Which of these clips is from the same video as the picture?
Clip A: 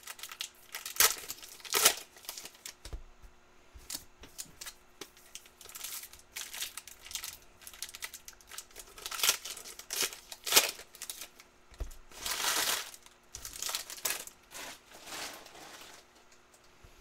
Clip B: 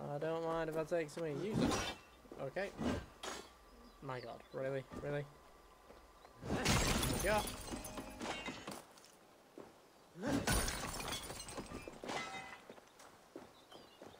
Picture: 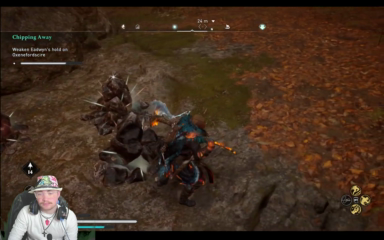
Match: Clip B